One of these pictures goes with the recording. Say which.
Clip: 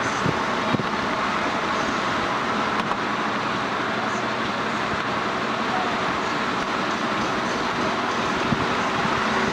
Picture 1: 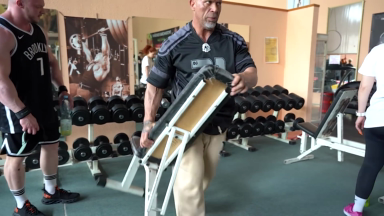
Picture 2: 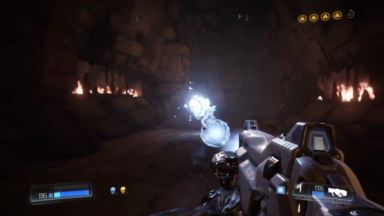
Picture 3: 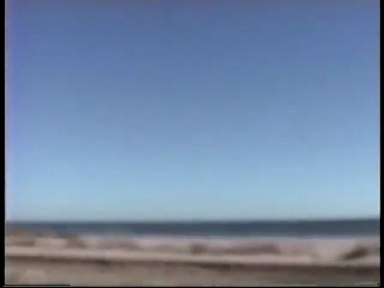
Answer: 3